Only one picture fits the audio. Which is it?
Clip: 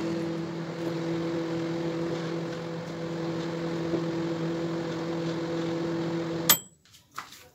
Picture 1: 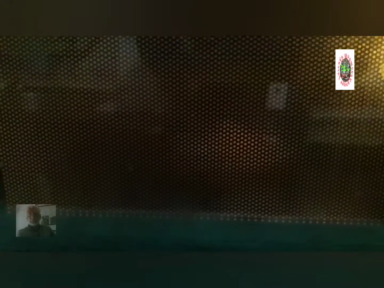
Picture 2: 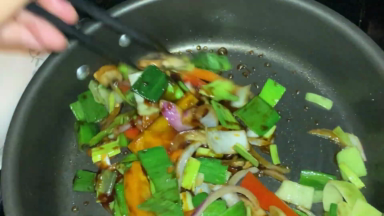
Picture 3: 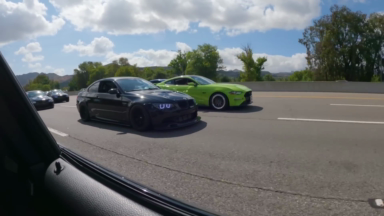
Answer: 1